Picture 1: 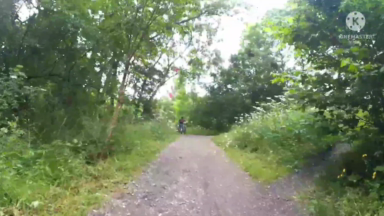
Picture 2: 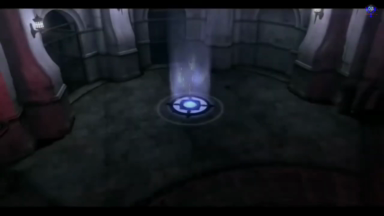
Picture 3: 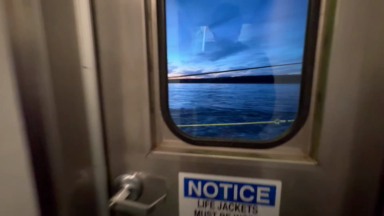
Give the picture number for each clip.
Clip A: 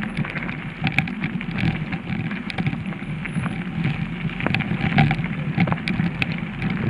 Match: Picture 1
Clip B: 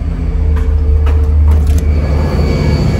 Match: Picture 3